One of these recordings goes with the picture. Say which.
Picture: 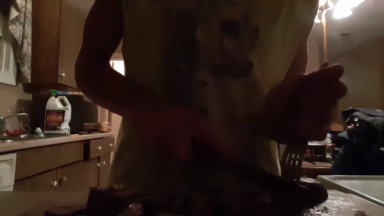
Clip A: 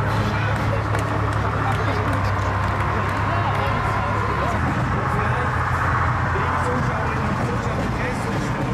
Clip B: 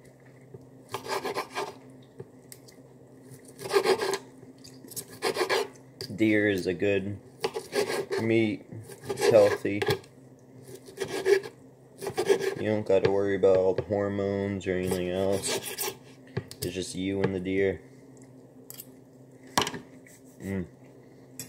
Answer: B